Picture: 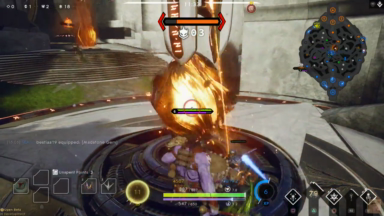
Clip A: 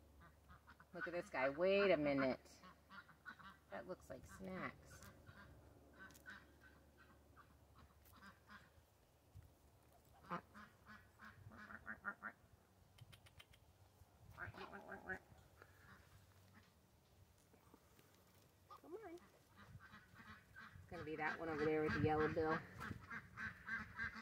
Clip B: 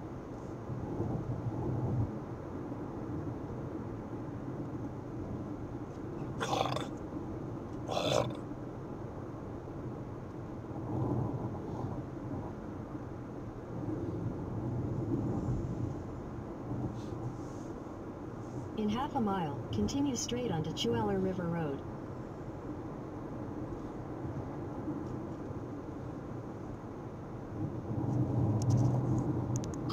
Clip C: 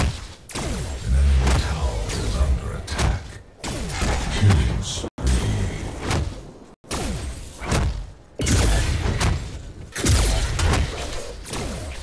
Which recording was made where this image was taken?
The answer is C